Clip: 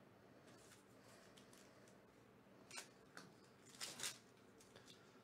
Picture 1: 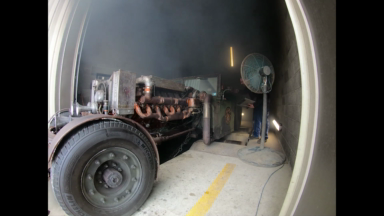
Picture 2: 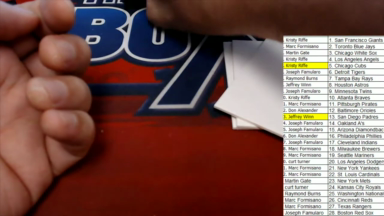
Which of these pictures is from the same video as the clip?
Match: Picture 2